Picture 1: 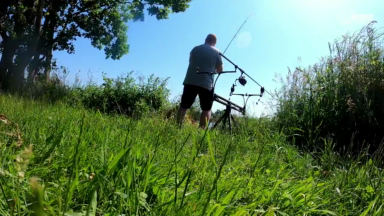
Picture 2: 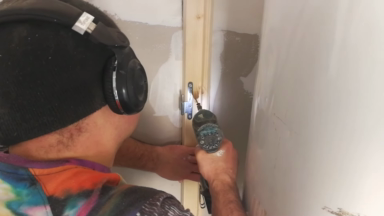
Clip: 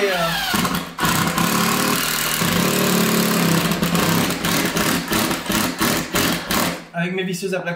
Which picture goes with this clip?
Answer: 2